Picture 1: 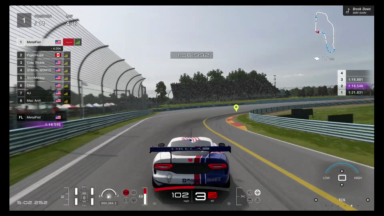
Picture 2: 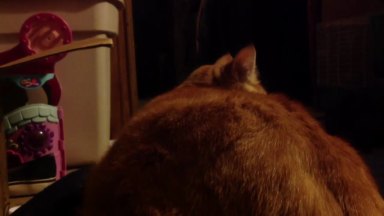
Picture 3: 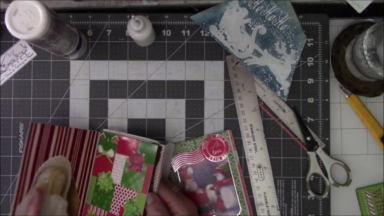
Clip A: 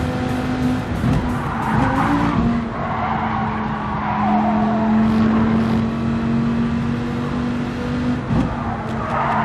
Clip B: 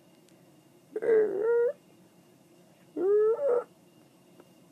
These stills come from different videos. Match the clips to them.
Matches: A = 1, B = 2